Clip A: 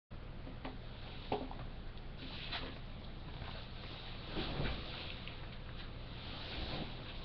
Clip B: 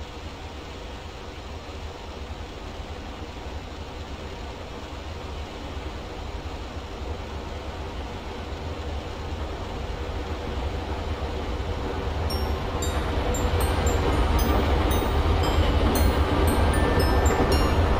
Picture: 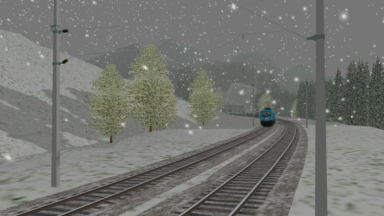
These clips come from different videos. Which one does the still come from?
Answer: B